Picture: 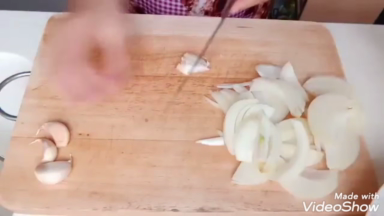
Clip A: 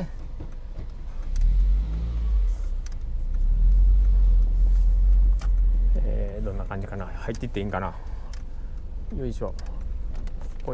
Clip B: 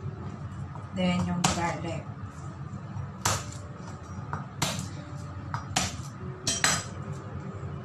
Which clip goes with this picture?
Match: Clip B